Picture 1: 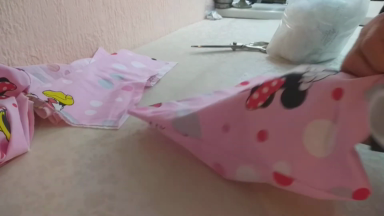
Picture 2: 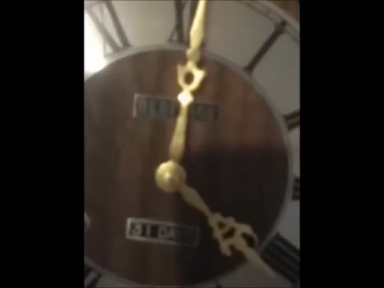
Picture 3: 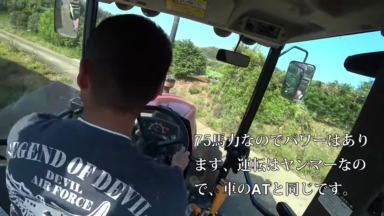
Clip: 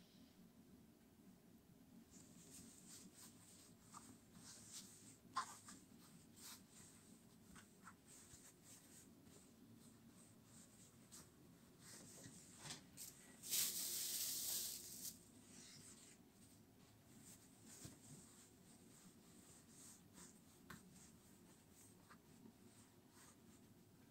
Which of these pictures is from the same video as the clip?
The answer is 1